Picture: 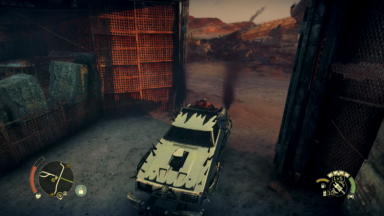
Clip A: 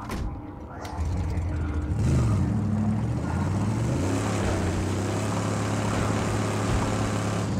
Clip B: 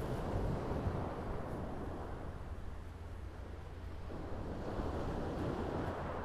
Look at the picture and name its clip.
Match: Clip A